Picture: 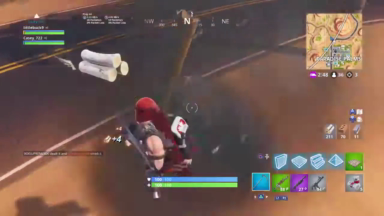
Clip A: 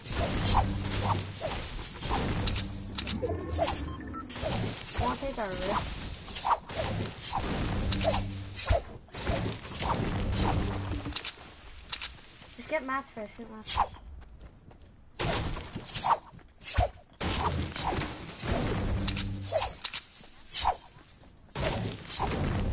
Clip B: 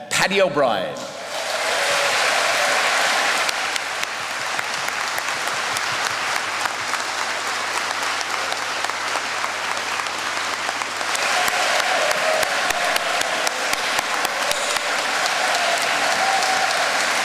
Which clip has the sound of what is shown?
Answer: A